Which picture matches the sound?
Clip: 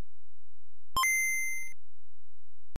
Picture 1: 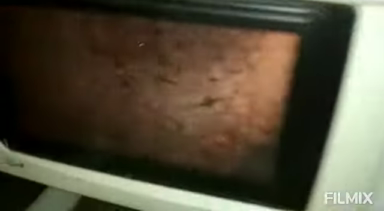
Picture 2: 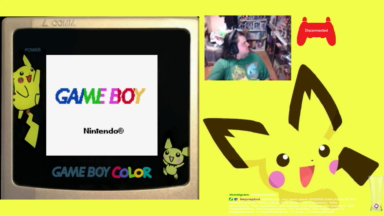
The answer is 2